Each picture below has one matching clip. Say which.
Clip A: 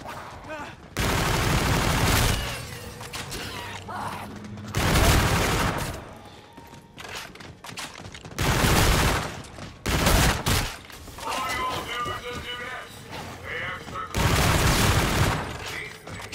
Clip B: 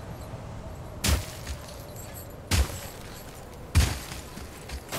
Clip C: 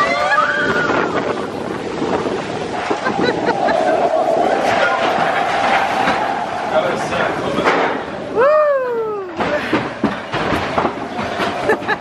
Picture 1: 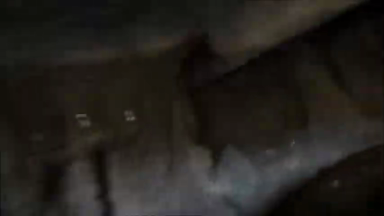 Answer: C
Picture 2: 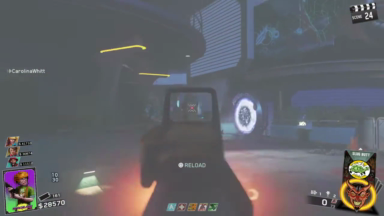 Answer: A